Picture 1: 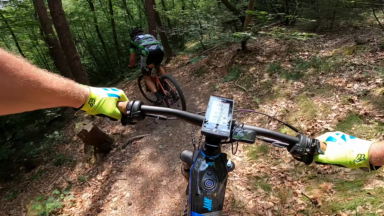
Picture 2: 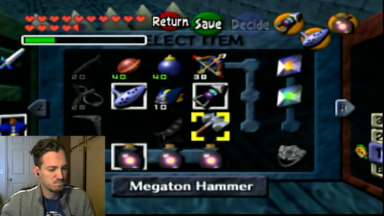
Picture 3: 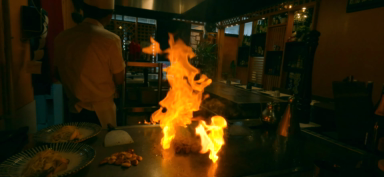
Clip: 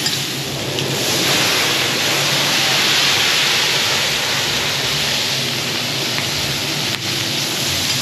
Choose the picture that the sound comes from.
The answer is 3